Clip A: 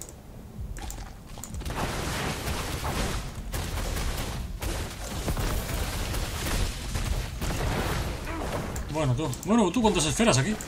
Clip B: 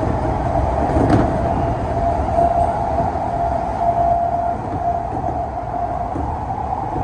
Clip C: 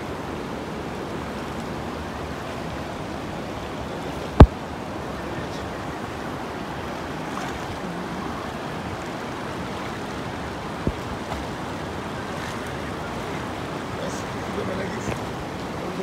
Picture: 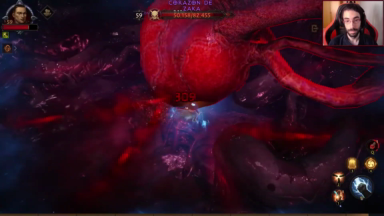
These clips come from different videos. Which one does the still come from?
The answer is A